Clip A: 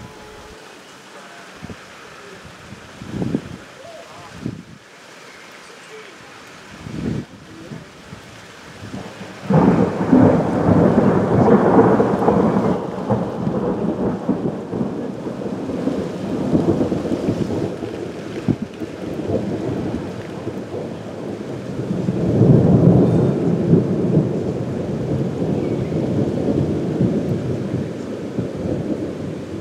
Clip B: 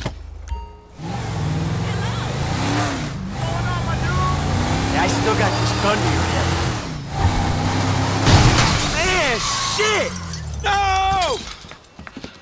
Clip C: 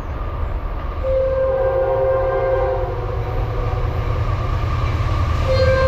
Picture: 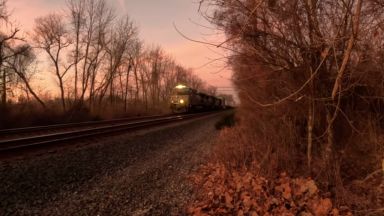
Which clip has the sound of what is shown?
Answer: C